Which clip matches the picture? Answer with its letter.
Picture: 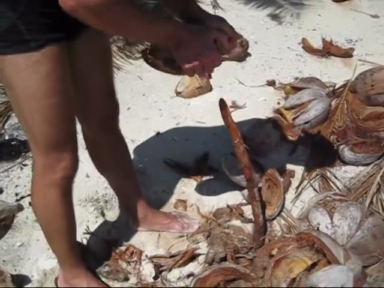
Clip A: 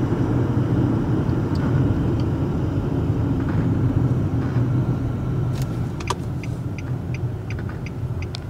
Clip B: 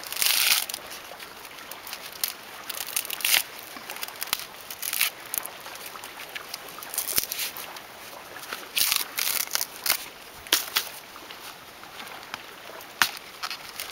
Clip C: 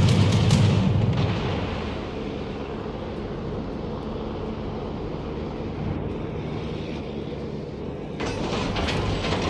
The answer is B